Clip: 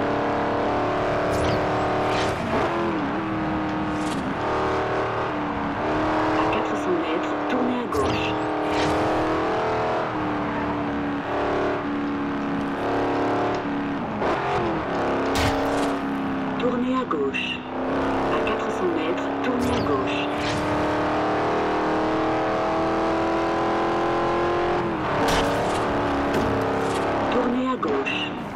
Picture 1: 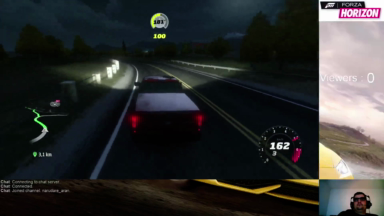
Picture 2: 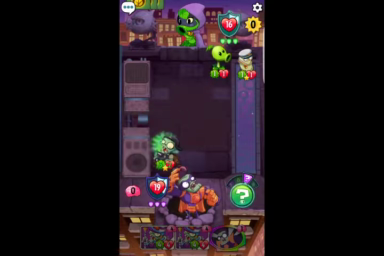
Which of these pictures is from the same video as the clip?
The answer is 1